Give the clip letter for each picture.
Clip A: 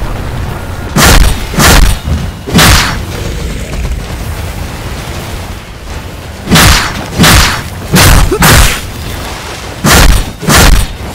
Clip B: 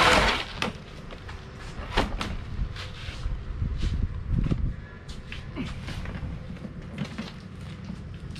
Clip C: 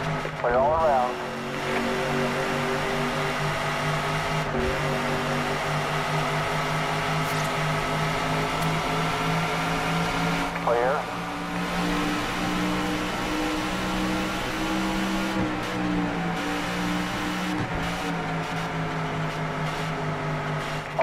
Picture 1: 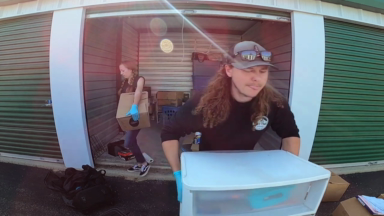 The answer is B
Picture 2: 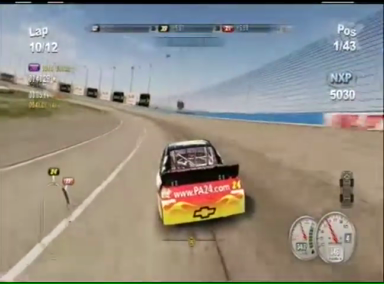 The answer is C